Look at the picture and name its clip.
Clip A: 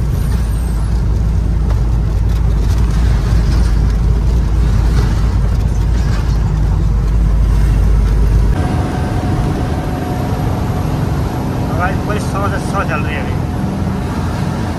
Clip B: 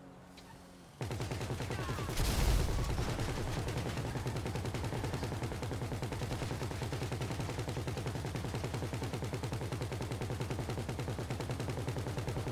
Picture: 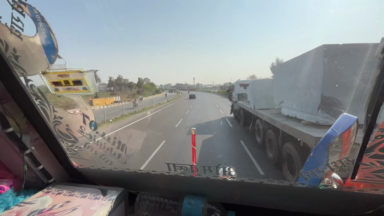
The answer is A